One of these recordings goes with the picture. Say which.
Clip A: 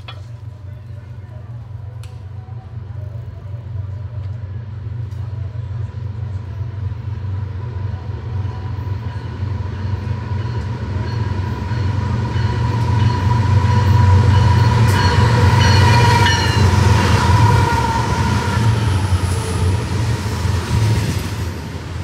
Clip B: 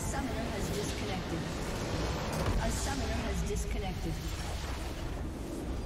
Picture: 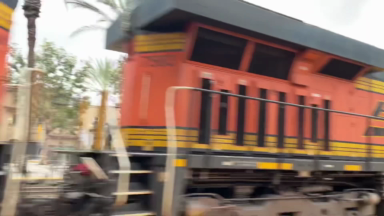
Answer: A